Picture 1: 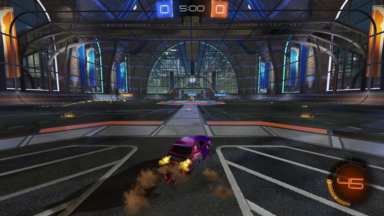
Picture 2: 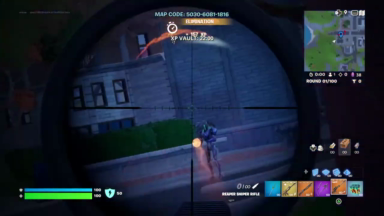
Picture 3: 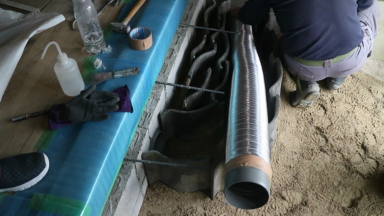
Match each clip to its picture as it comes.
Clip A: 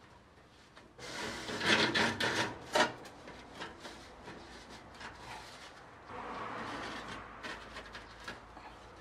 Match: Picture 3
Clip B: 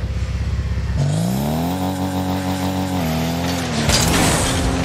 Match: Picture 1